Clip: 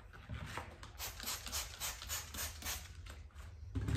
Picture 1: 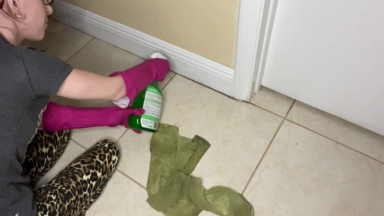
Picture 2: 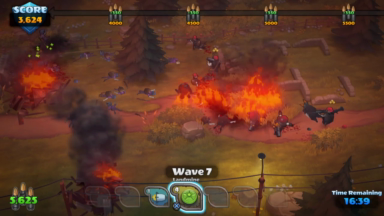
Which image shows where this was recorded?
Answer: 1